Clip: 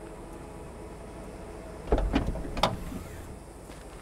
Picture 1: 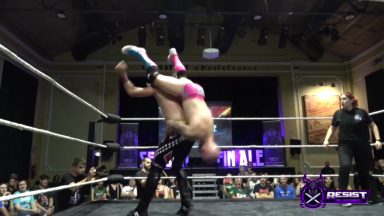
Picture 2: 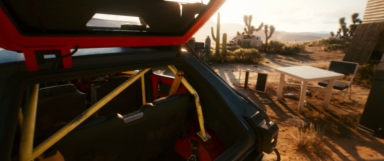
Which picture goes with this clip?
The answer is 2